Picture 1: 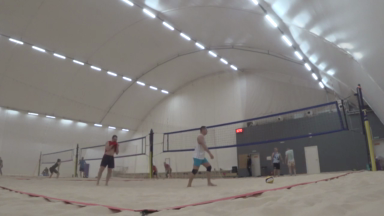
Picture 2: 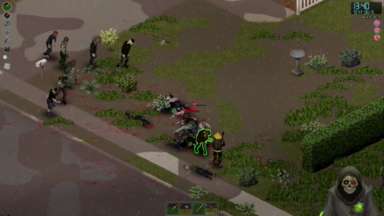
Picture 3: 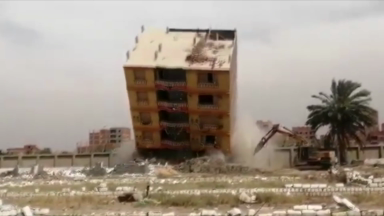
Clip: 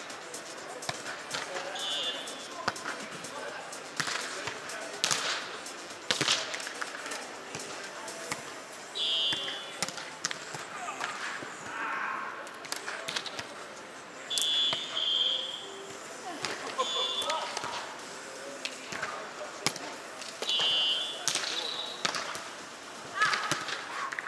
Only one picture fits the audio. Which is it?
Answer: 1